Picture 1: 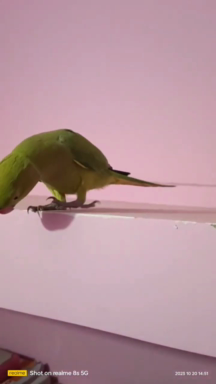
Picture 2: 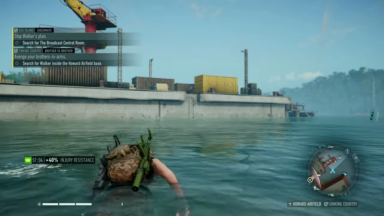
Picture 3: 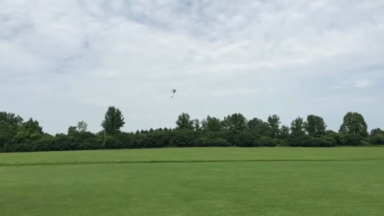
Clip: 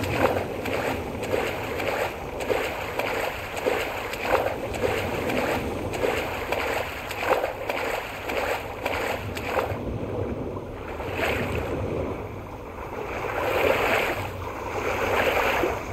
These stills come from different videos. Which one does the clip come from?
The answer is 2